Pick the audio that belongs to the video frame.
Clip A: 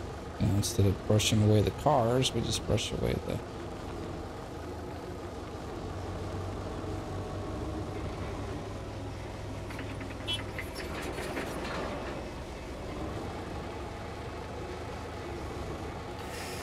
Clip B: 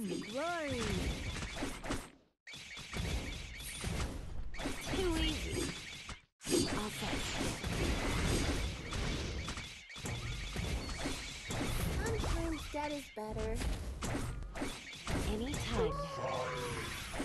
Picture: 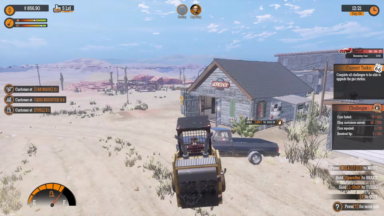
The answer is A